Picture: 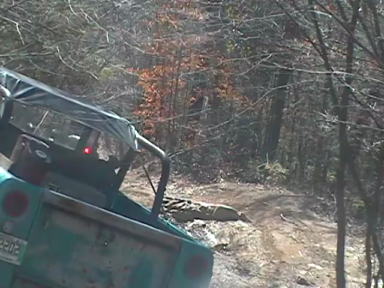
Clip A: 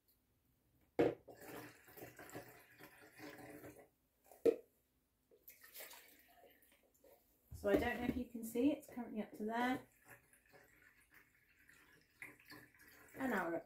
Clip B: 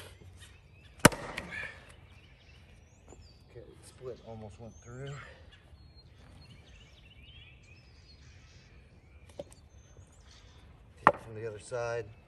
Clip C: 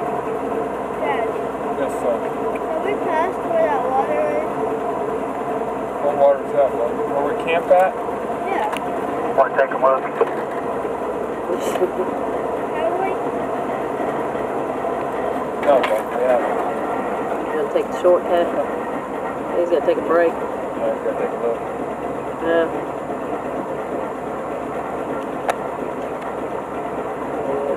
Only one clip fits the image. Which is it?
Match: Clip C